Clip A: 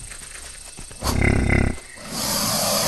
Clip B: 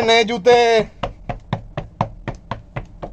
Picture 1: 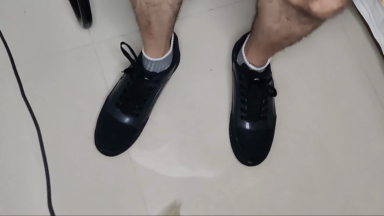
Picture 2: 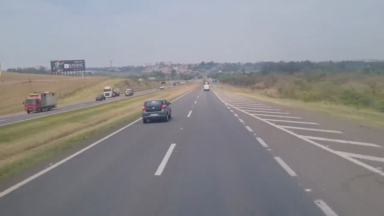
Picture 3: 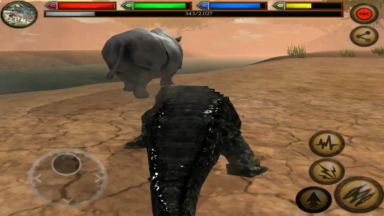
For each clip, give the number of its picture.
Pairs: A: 3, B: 1